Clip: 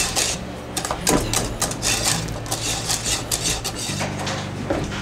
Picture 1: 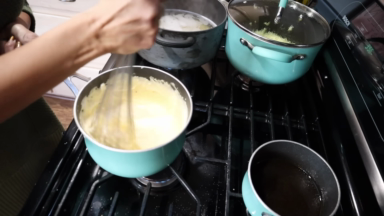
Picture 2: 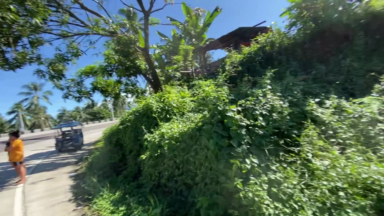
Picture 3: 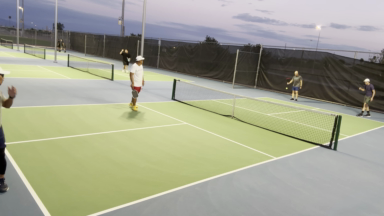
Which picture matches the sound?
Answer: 1